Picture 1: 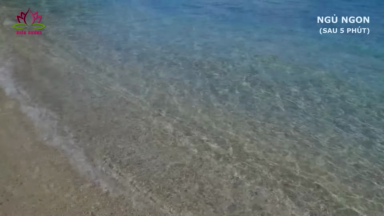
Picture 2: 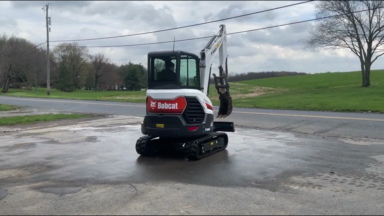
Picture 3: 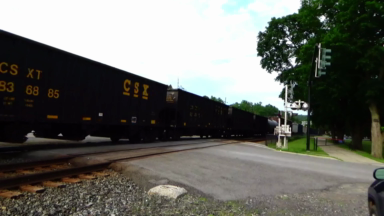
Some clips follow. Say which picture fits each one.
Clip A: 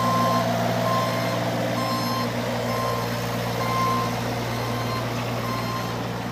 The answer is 2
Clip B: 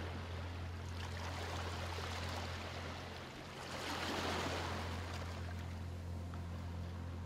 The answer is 1